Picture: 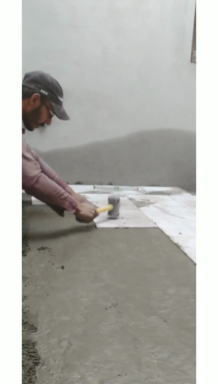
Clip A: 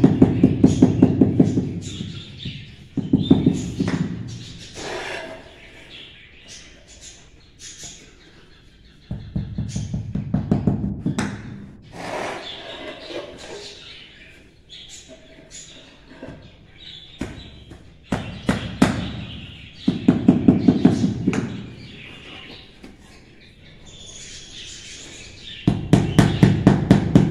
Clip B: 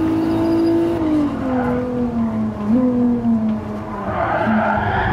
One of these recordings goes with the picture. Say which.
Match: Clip A